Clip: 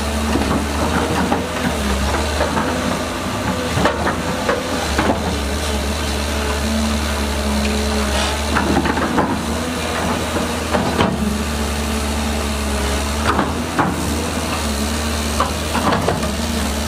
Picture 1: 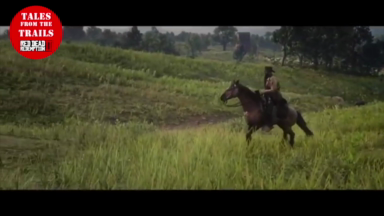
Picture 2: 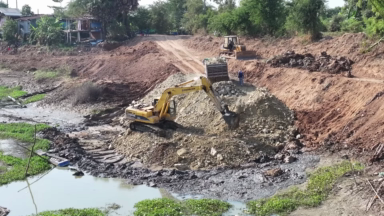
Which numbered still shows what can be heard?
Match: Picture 2